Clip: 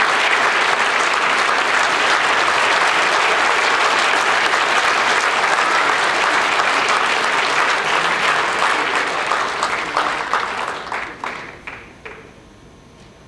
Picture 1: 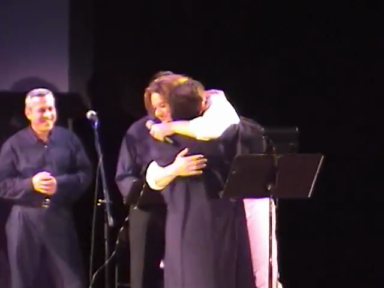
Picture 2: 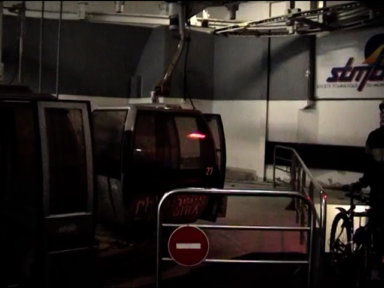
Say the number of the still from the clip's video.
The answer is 1